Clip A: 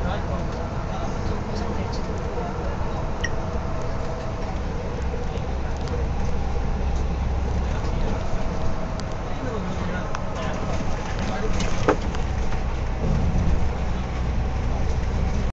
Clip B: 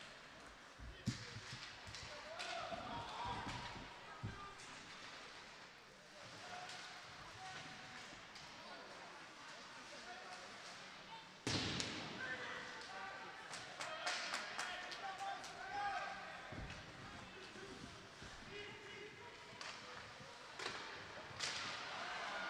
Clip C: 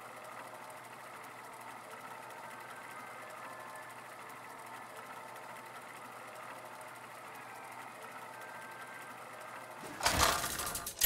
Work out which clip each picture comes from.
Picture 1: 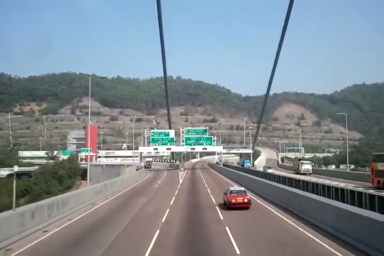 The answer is A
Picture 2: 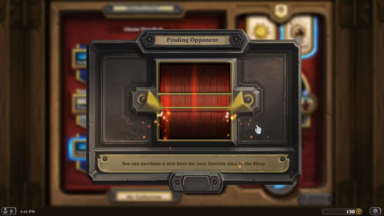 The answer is C